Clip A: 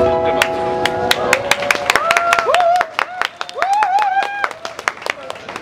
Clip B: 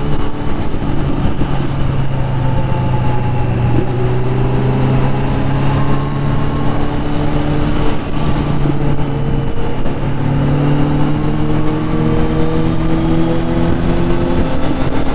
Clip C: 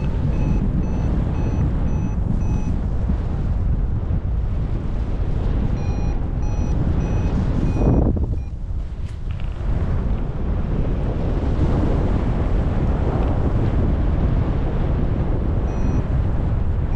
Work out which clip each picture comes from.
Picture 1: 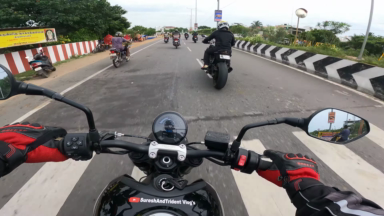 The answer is B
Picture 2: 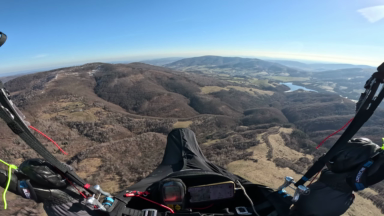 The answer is C